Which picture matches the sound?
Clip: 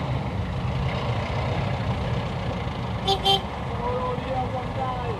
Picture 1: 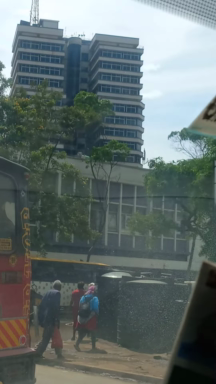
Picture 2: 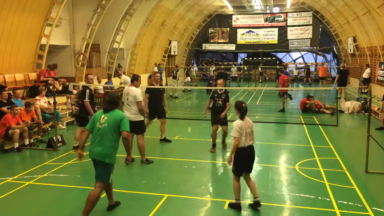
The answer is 1